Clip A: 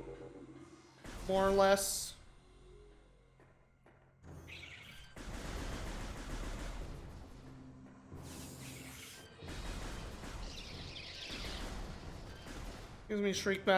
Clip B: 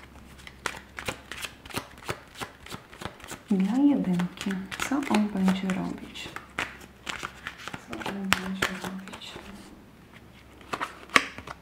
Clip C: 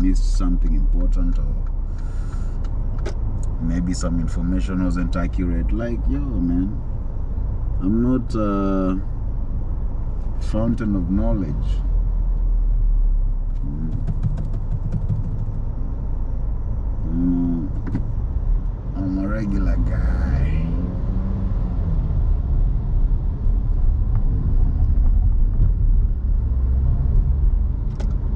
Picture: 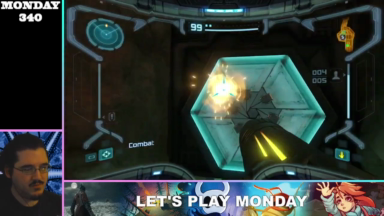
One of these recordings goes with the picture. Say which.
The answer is A